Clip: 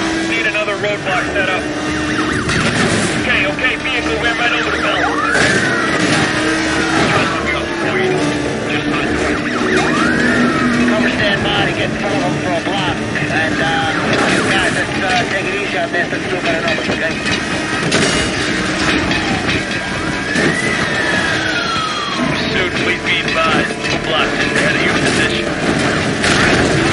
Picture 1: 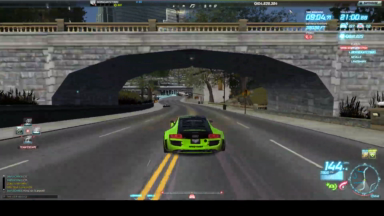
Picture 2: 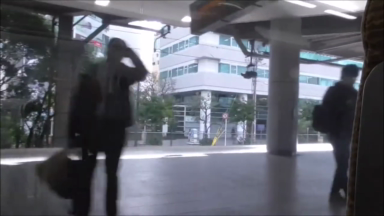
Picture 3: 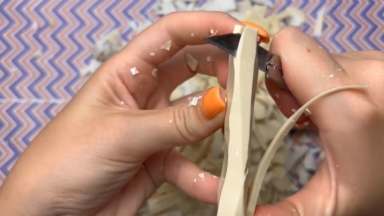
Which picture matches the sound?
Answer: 1